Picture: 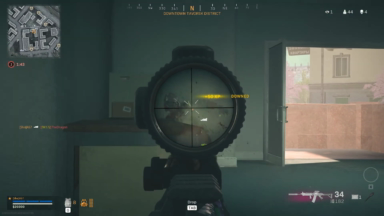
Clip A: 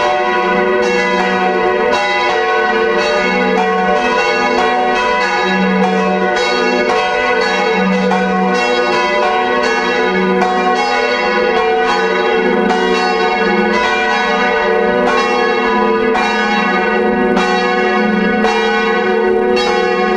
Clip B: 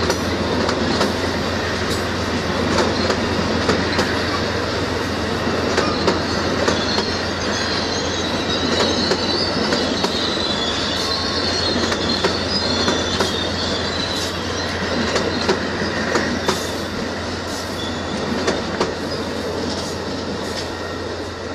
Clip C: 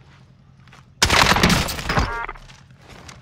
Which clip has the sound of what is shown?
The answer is C